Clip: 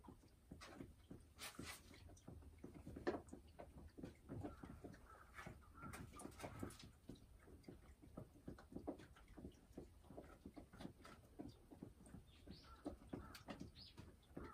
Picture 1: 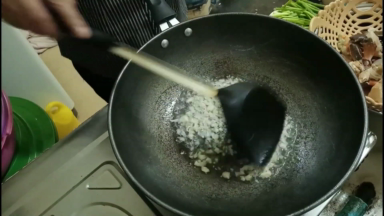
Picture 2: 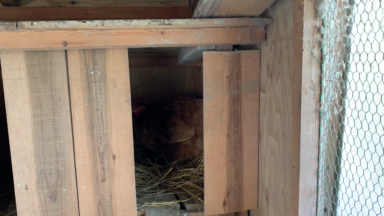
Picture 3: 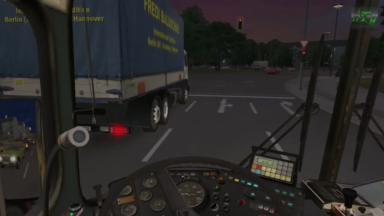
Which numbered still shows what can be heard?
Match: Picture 2